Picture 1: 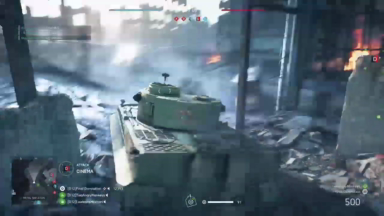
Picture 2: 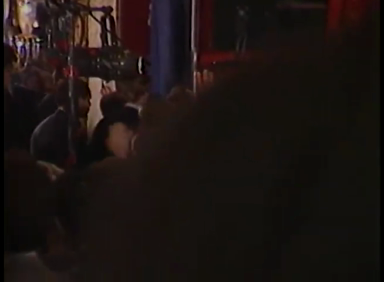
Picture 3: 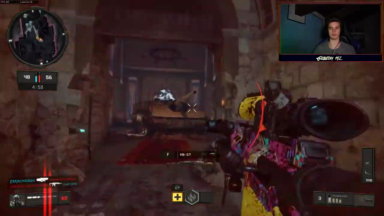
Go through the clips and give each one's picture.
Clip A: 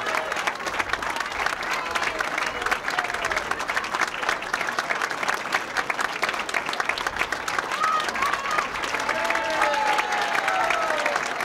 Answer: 2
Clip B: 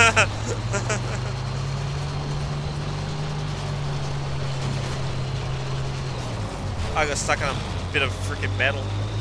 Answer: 1